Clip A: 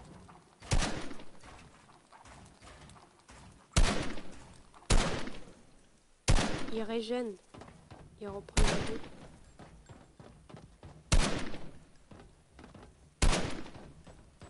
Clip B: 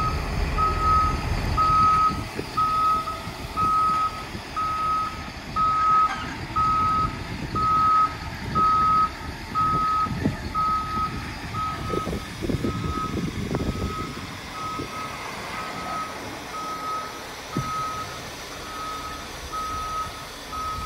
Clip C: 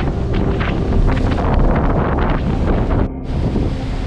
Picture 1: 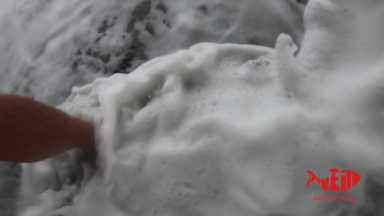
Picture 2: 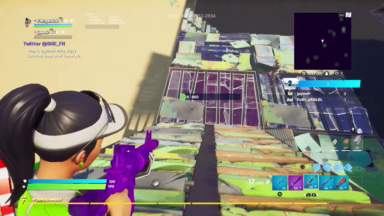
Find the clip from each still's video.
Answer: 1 C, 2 A